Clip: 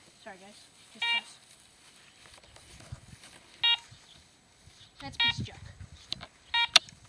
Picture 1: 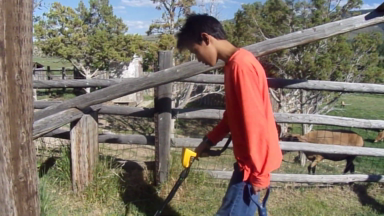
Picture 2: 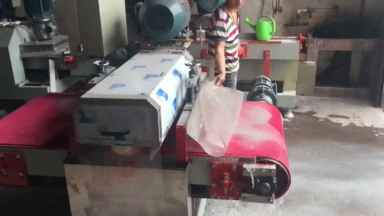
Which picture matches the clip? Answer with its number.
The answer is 1